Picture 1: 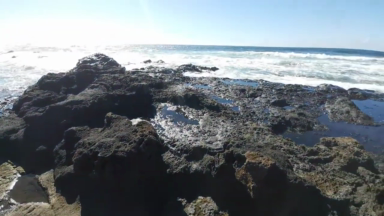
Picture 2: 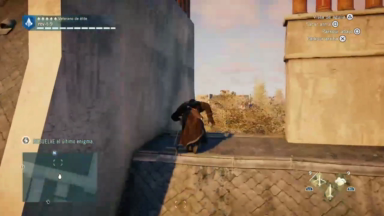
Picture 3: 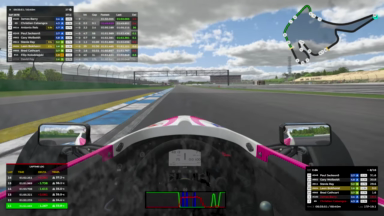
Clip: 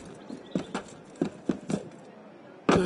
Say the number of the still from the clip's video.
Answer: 2